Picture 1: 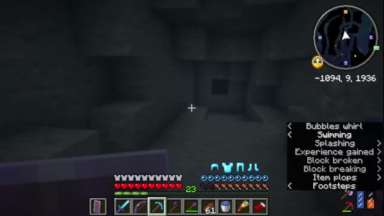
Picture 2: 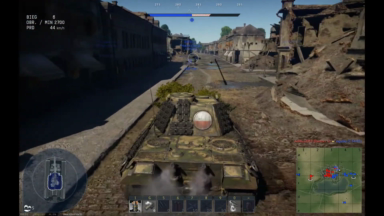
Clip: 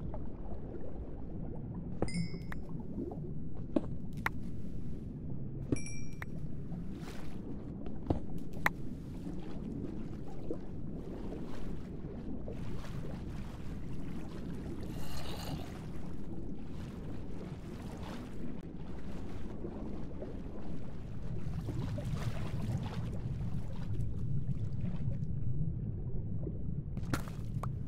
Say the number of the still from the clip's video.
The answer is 1